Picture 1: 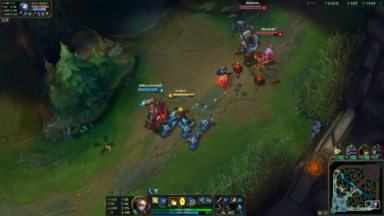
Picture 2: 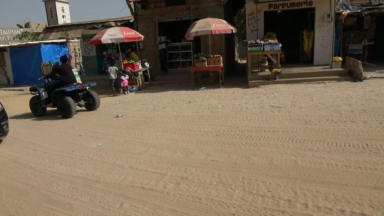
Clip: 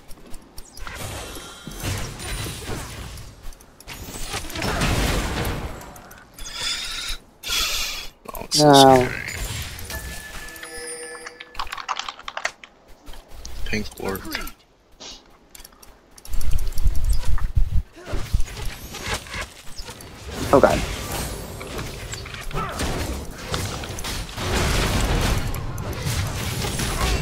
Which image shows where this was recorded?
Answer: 1